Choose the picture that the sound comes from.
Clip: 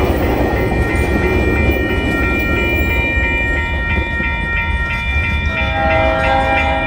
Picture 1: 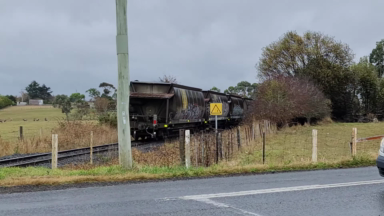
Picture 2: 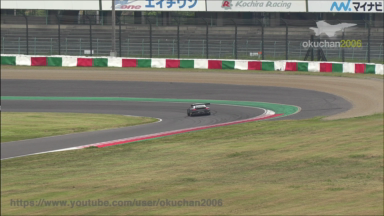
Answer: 1